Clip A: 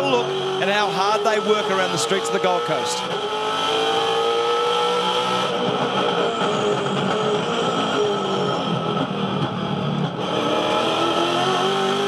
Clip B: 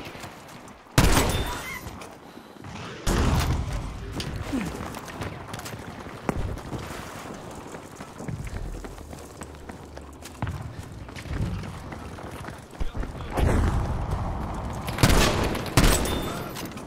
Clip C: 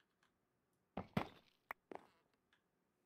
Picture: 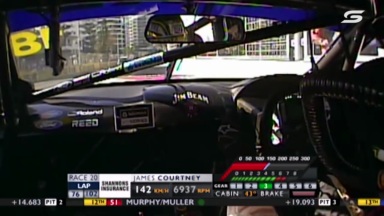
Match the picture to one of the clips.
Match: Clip A